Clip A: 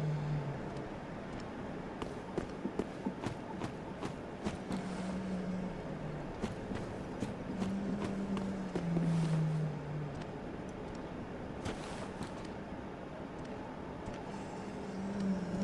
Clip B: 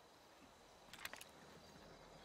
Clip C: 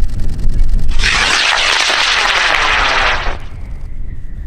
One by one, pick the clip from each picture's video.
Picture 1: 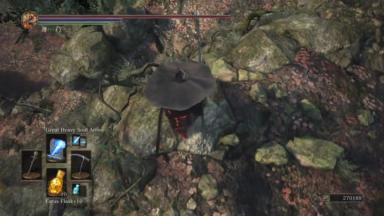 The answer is A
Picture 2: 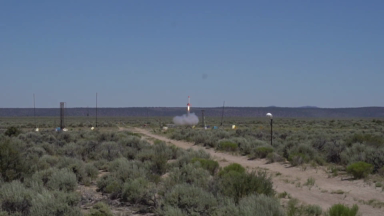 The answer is C